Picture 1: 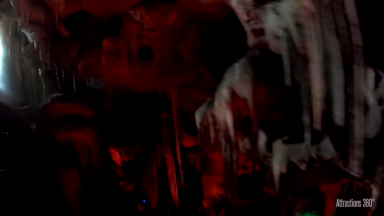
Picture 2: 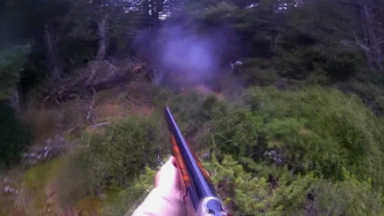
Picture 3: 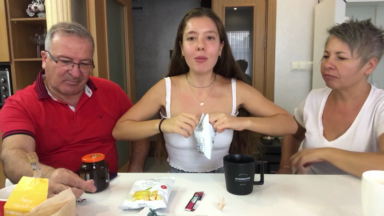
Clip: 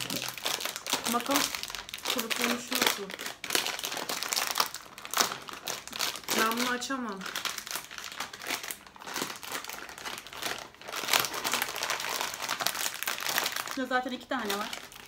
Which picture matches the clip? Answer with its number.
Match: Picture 3